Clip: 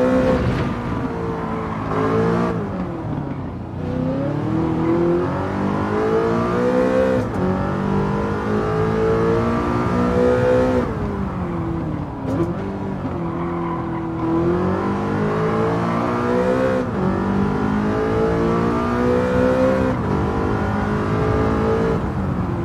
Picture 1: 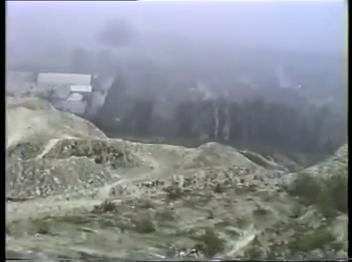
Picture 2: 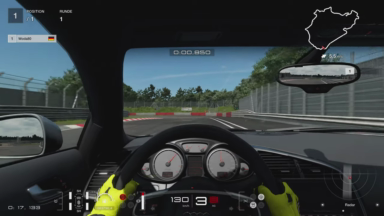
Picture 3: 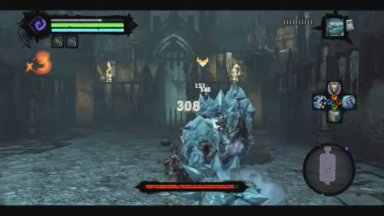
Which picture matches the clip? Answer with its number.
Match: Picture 2